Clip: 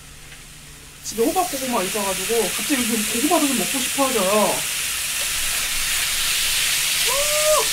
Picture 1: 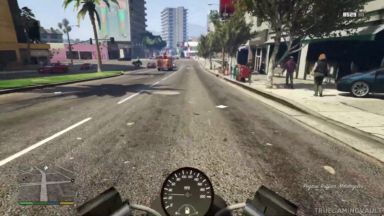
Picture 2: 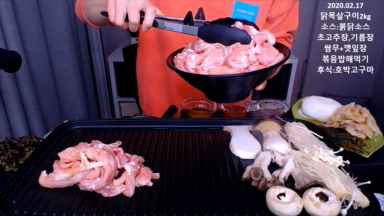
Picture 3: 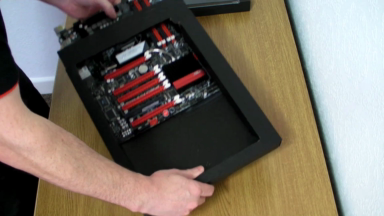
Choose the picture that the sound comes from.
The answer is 2